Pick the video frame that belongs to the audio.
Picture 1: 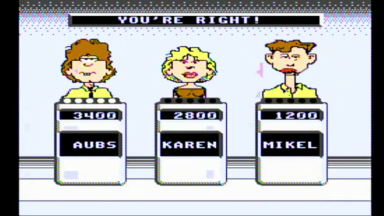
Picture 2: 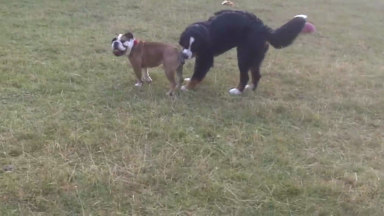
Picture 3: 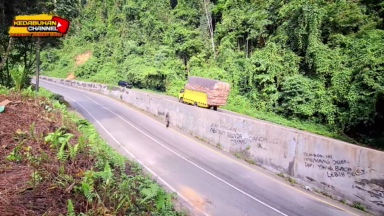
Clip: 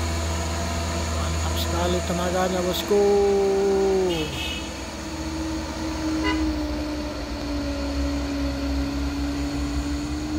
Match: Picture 3